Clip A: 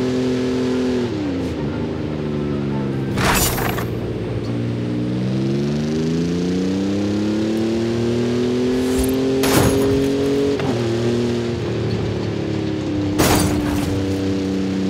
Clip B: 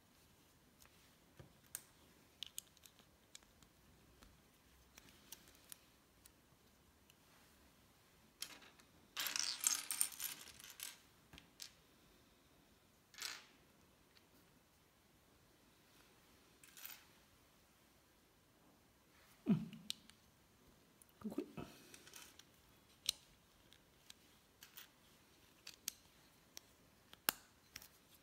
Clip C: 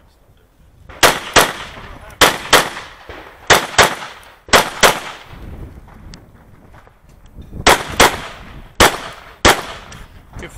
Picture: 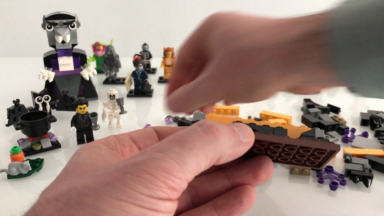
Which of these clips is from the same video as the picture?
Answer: B